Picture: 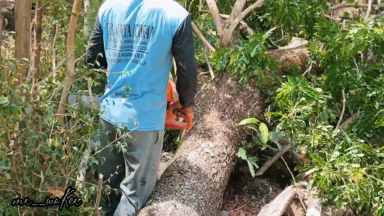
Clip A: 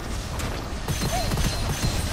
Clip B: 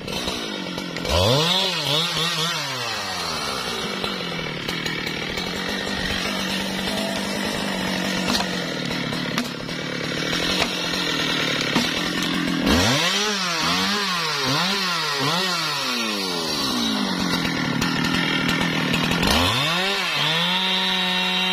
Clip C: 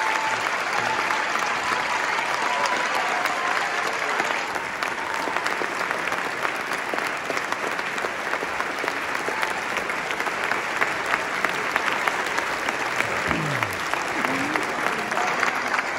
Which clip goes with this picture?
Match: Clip B